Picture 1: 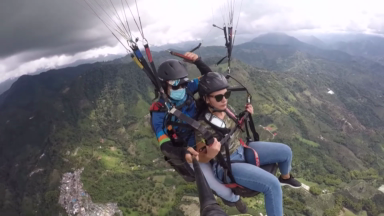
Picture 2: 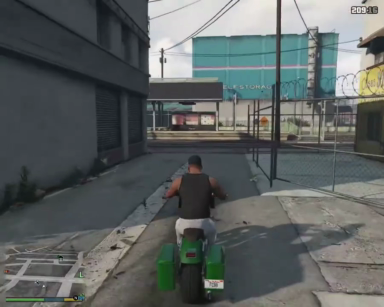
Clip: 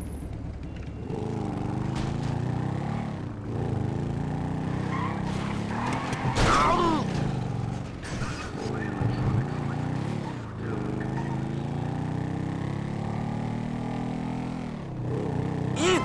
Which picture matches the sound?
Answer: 2